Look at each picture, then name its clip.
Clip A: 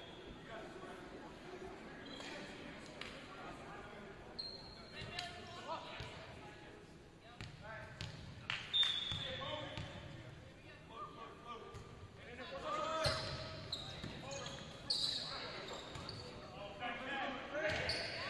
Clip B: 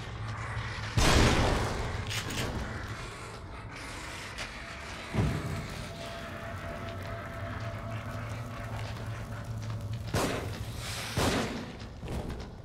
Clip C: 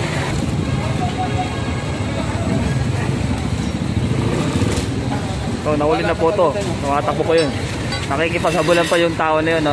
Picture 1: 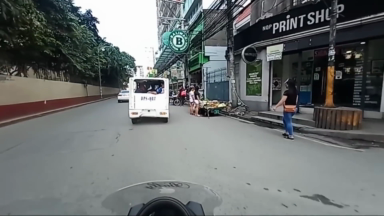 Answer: C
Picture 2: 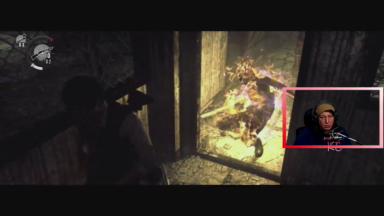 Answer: B